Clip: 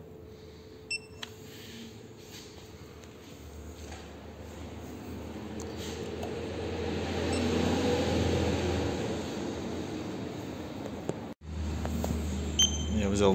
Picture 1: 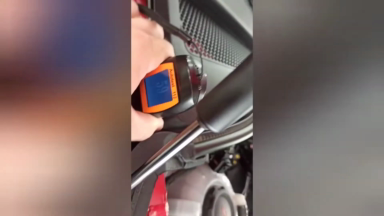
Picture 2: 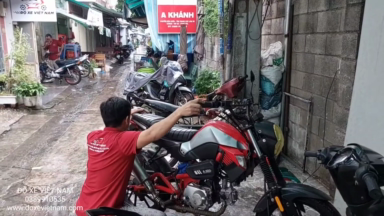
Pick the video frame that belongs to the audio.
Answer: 1